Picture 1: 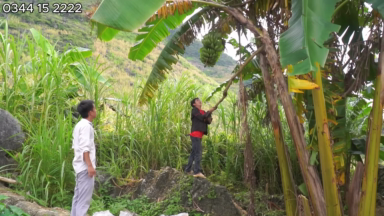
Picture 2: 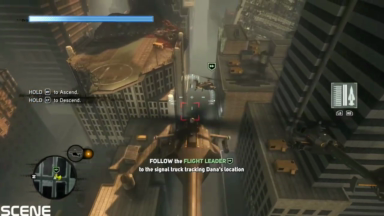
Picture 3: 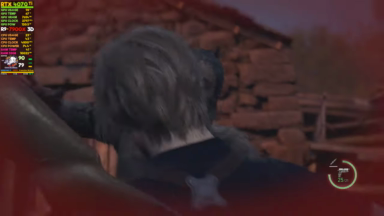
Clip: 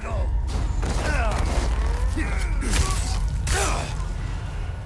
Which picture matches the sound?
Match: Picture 3